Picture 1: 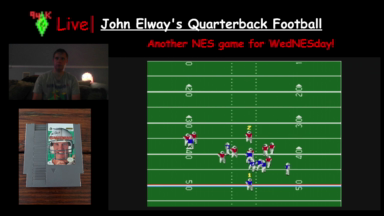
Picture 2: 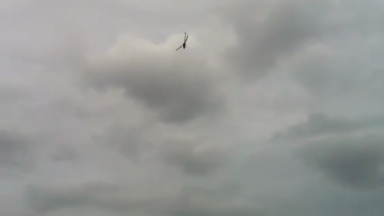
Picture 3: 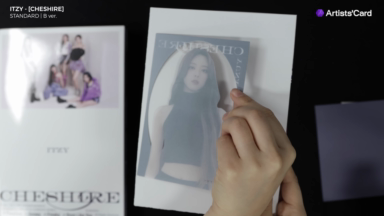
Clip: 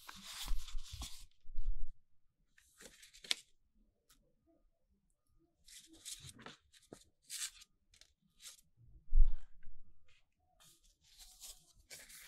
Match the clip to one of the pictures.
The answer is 3